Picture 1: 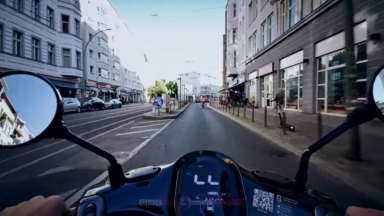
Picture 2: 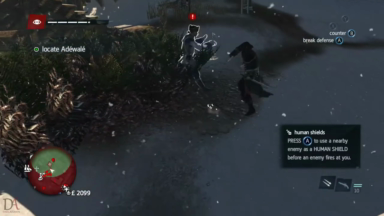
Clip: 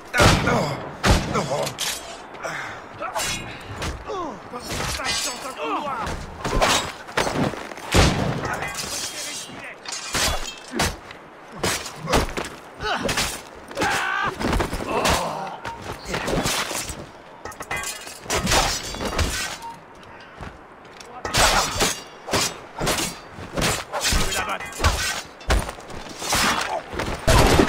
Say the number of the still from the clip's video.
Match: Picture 2